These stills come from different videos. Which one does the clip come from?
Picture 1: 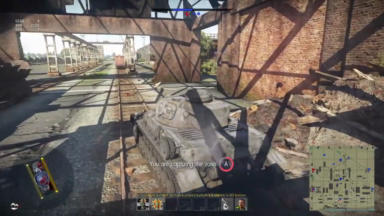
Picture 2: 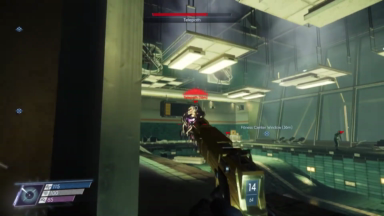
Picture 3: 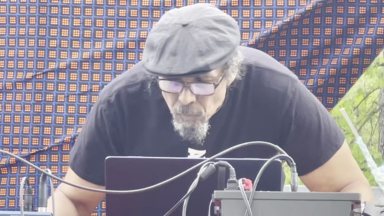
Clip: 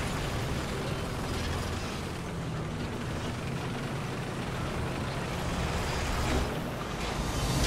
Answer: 1